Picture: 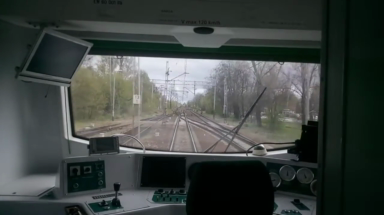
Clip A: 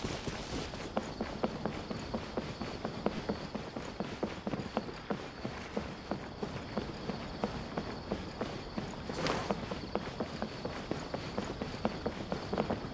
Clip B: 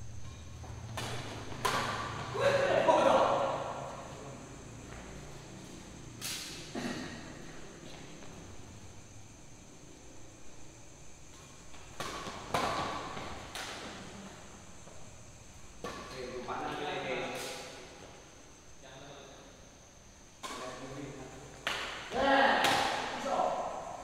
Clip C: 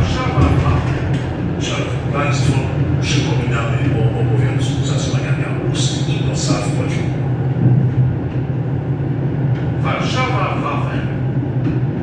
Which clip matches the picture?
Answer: C